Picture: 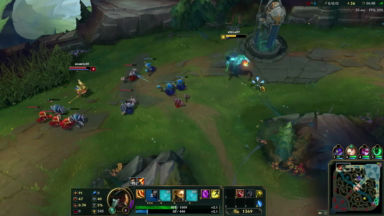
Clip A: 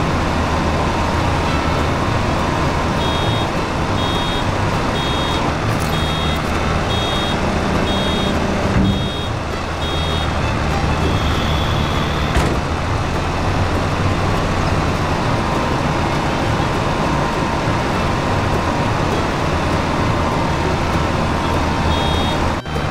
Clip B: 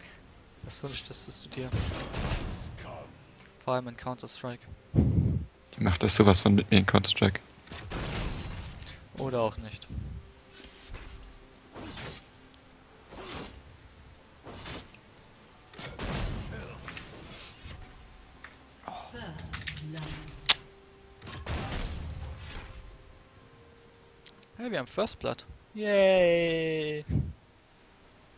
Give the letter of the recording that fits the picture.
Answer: B